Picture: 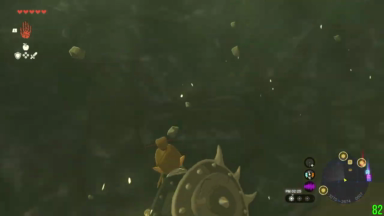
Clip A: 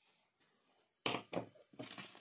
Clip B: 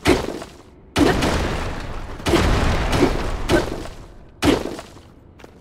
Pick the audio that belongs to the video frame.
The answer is B